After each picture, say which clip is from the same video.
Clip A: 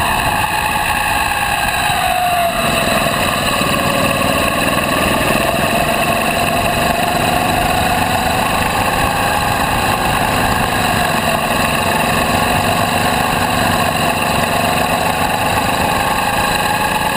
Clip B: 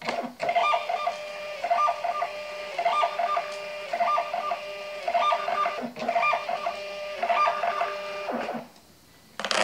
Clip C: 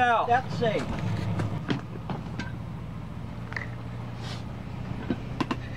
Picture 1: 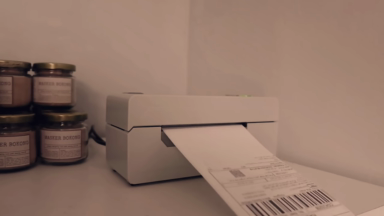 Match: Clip B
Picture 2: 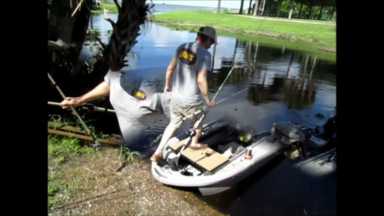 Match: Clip C